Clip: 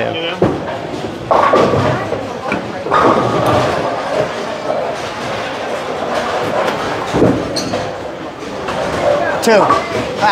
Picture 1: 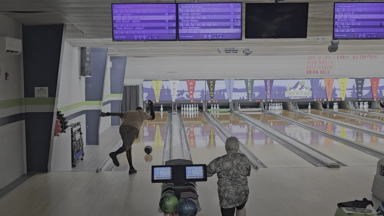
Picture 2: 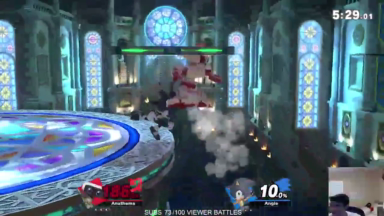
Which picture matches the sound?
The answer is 1